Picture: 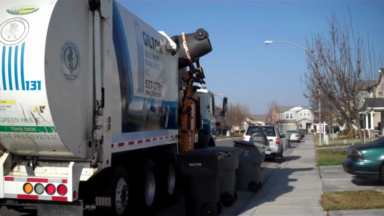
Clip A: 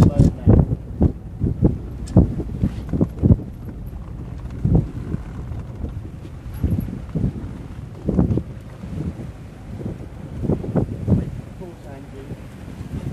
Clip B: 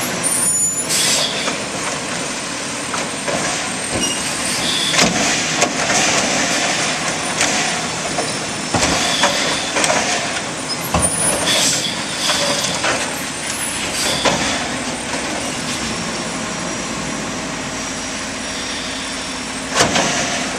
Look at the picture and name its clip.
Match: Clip B